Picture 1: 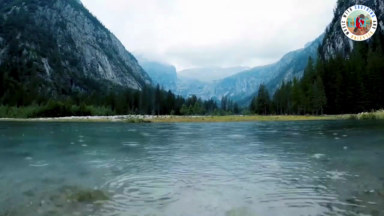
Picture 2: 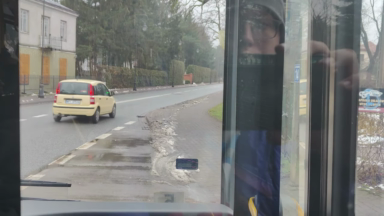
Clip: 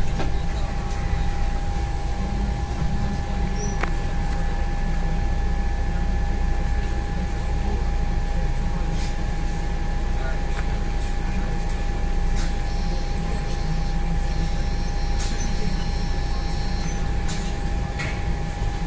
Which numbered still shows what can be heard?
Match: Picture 2